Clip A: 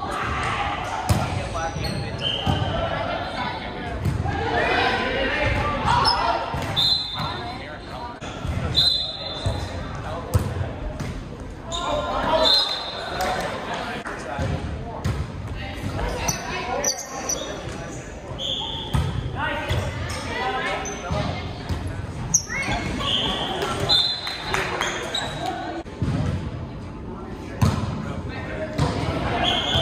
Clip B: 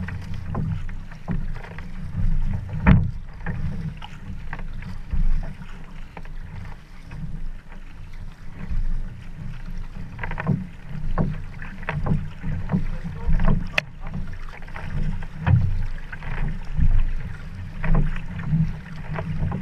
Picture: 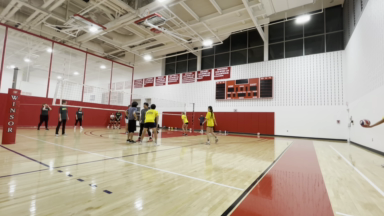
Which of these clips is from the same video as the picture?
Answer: A